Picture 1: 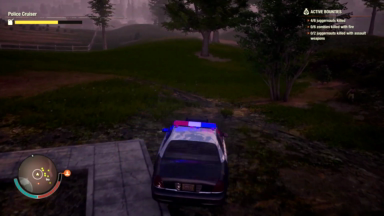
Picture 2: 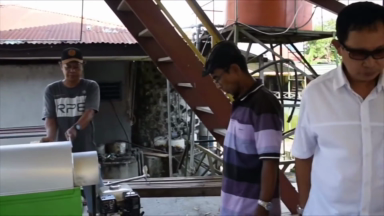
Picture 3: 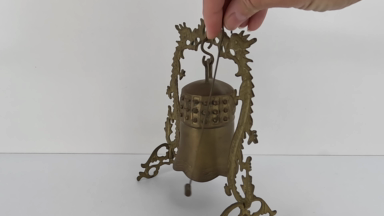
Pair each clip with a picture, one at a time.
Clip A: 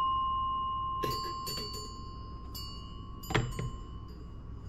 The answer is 3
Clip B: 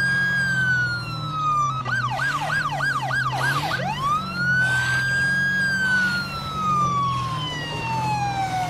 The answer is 1